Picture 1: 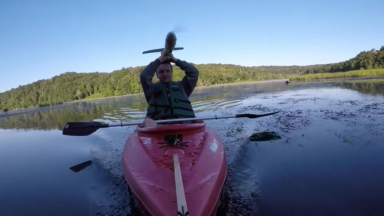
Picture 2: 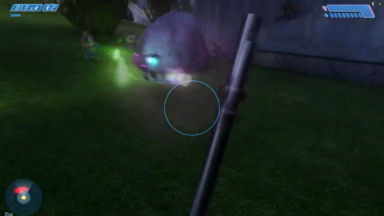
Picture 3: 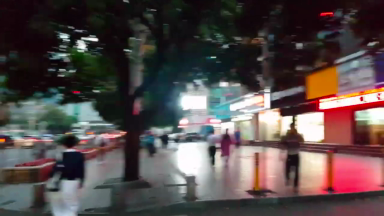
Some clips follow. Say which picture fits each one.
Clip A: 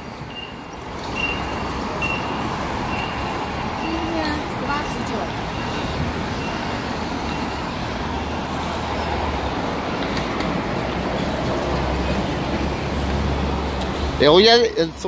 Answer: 3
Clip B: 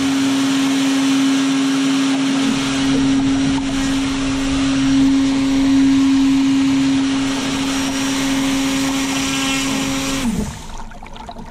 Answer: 1